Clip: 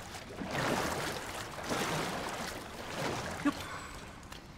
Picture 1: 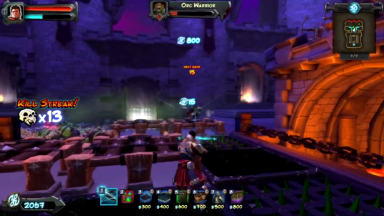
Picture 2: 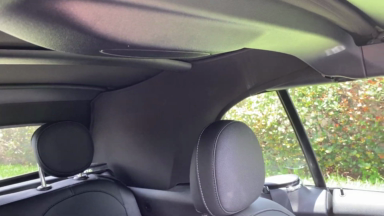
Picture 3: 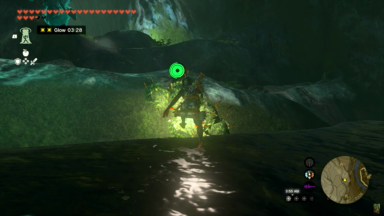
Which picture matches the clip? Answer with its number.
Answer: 3